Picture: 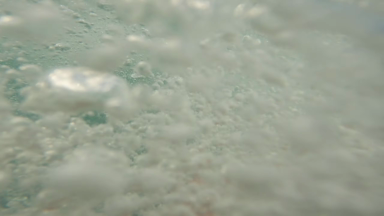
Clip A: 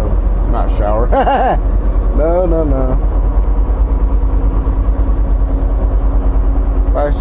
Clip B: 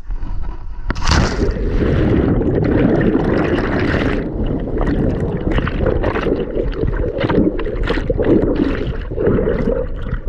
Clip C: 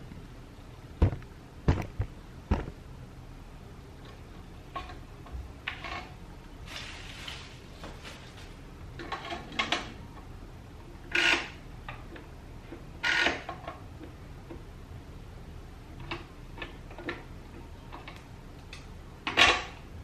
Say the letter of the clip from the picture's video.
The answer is B